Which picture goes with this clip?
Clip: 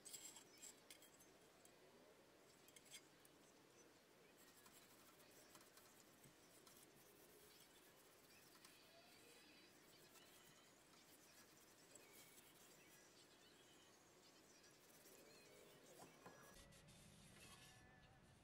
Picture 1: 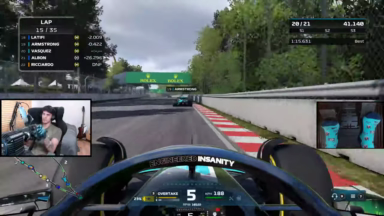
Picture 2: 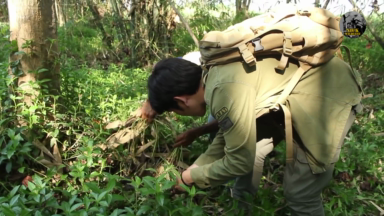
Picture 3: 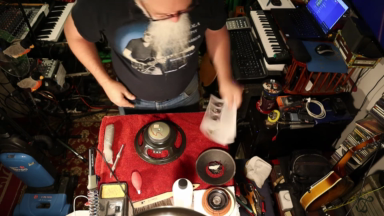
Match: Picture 3